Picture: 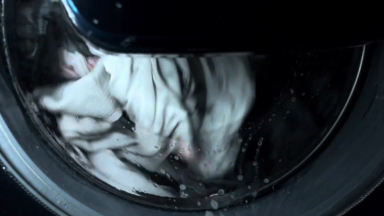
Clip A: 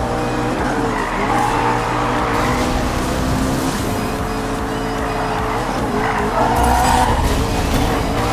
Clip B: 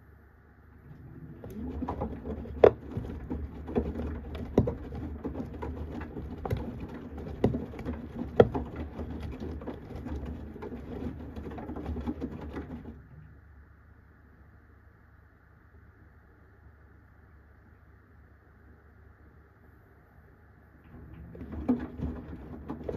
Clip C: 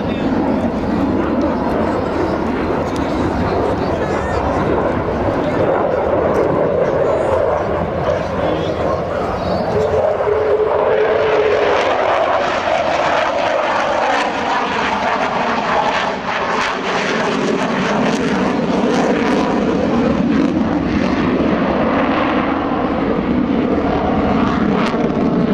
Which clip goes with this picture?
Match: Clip B